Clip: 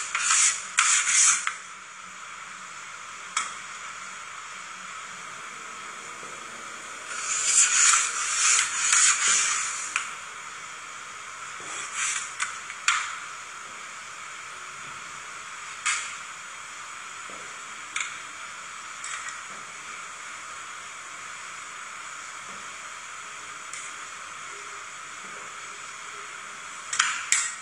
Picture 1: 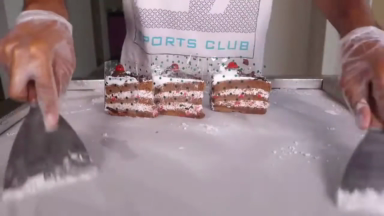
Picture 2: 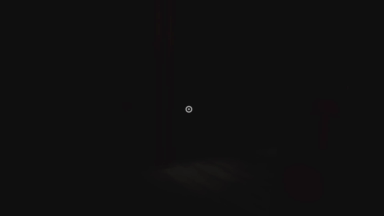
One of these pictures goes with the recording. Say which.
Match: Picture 1